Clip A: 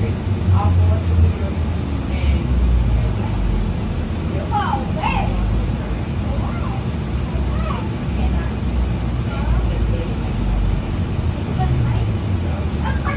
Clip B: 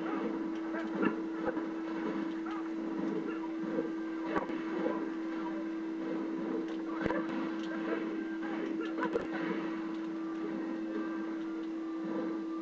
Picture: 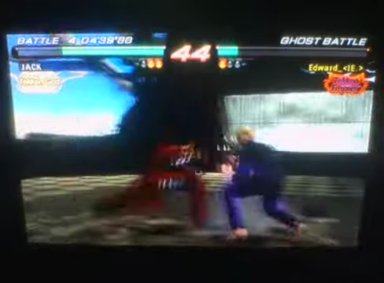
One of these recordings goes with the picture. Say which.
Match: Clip B